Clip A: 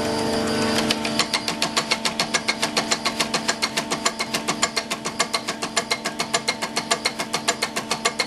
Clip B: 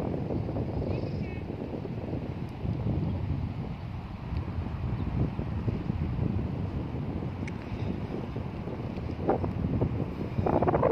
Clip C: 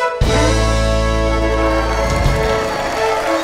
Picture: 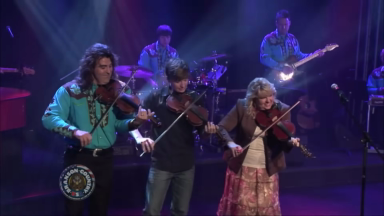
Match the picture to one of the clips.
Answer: C